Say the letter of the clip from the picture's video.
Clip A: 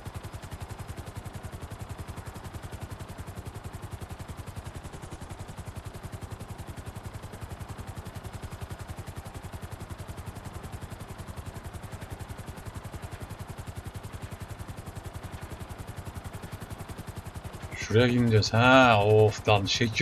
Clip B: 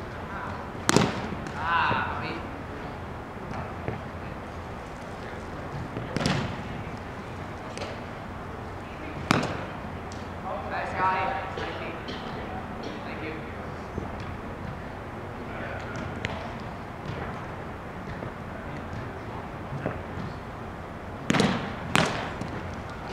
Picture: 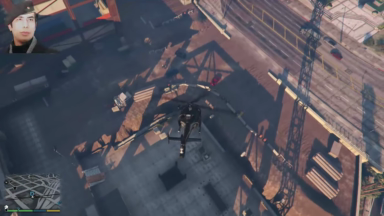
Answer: A